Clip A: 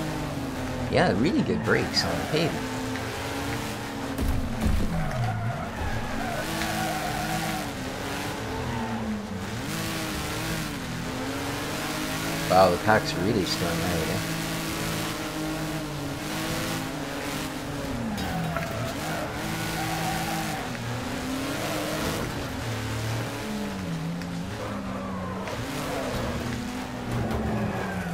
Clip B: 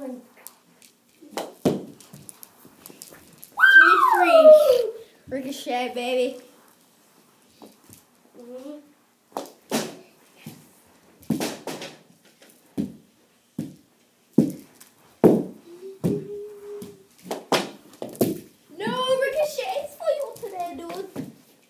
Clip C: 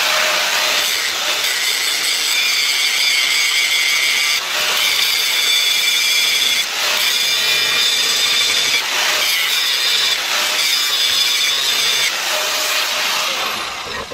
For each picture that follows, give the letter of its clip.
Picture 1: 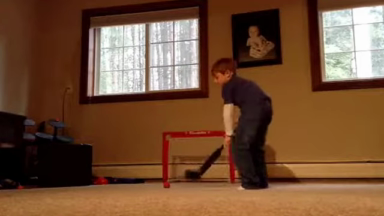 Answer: B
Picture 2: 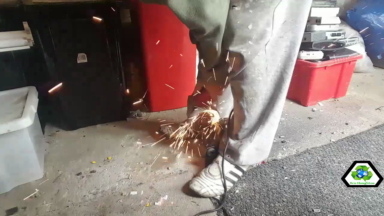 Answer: C